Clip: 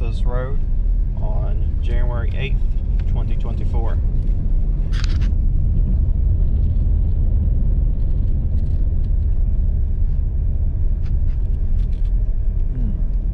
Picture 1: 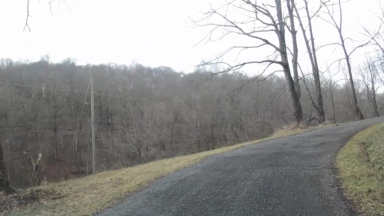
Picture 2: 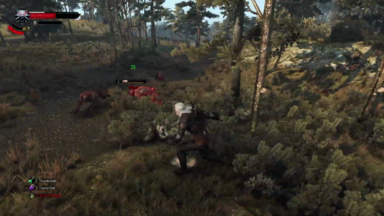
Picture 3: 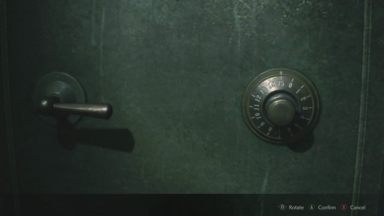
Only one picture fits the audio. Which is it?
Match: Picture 1